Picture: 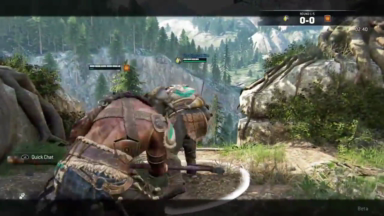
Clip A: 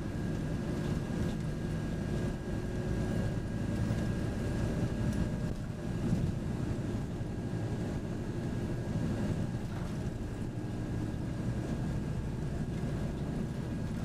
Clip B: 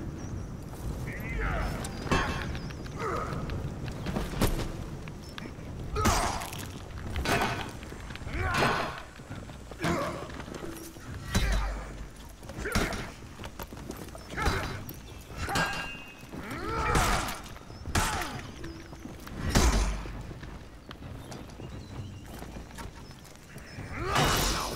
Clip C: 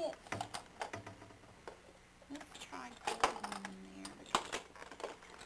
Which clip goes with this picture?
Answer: B